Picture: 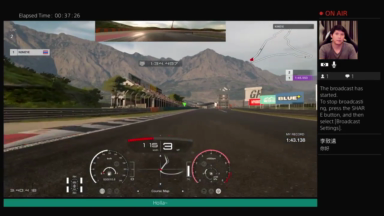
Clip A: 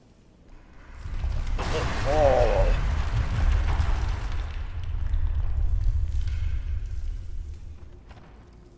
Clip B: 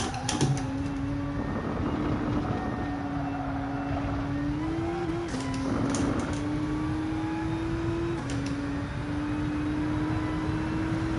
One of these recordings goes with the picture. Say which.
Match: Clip B